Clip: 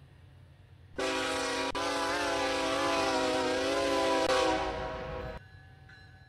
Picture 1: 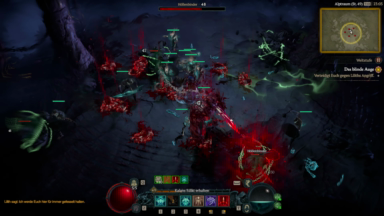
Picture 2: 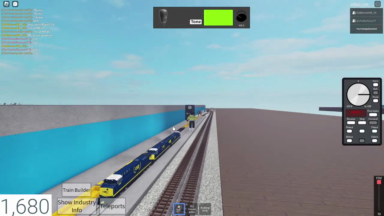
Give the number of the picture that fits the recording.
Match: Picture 2